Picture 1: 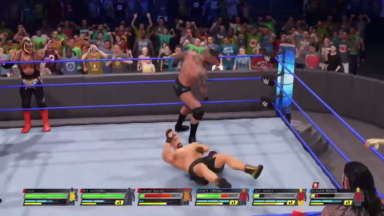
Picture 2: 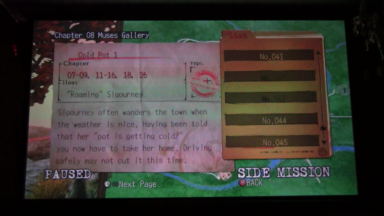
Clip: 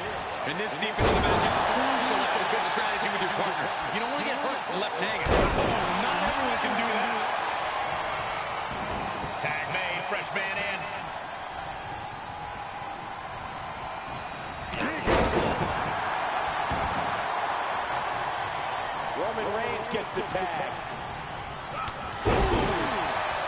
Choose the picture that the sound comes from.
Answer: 1